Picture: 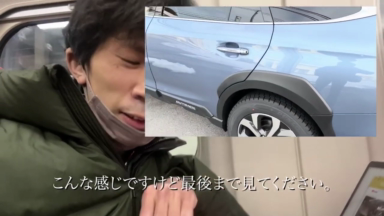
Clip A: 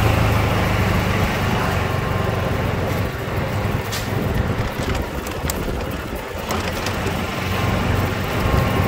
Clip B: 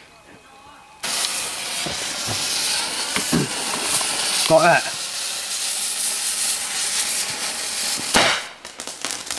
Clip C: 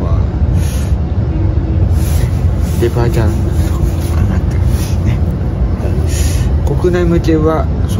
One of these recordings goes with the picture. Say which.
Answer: C